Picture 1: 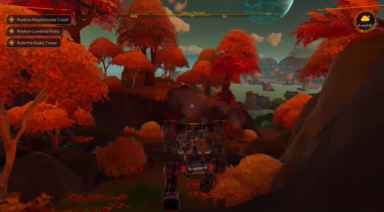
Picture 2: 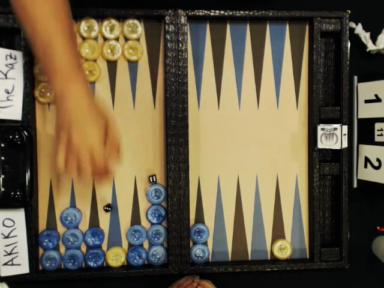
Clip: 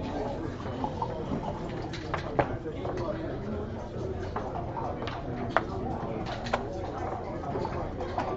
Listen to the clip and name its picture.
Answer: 2